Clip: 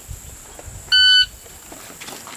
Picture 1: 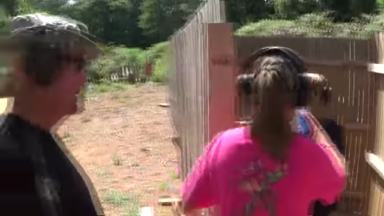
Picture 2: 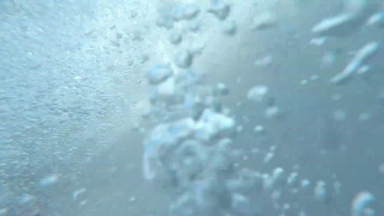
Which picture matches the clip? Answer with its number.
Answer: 1